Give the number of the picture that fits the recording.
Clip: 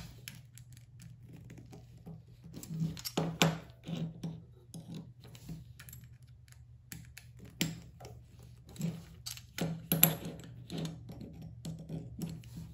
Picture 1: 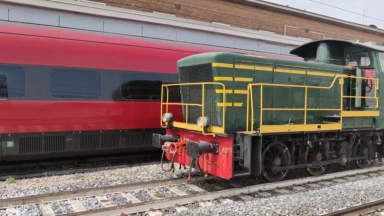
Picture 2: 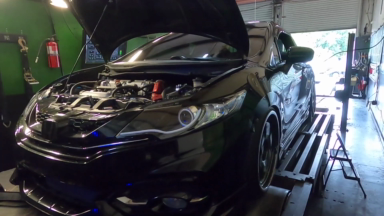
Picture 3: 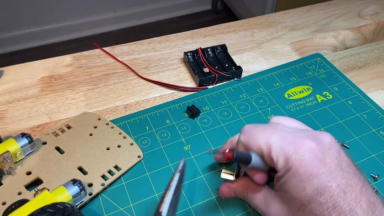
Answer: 3